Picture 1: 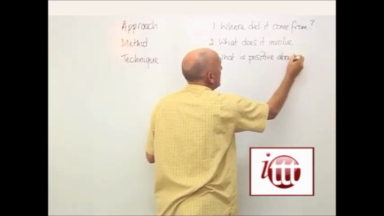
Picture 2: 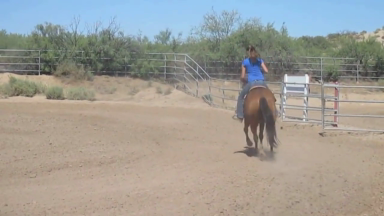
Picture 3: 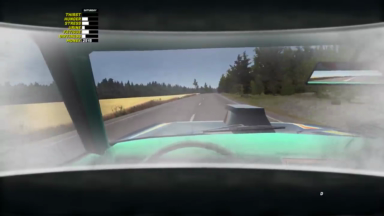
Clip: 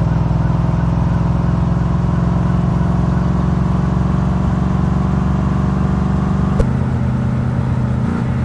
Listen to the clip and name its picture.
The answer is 3